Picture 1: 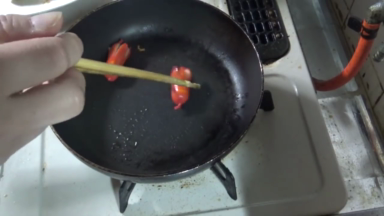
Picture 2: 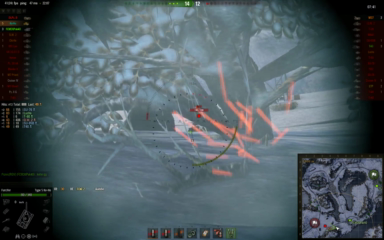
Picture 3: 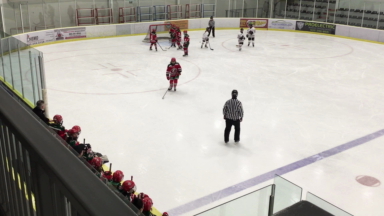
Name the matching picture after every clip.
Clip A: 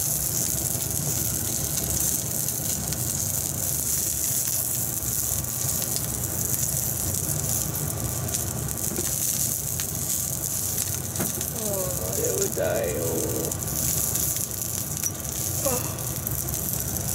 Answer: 1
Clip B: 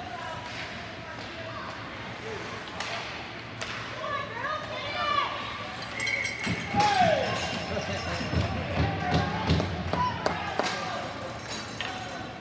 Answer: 3